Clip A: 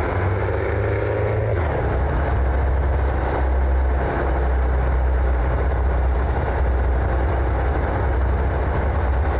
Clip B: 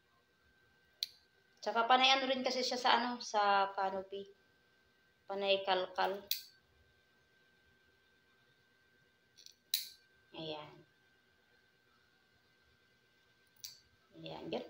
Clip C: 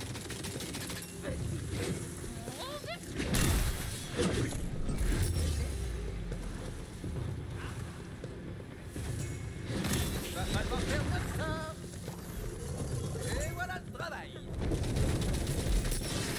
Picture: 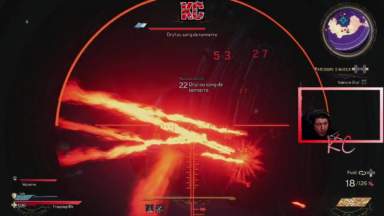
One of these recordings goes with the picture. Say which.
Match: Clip C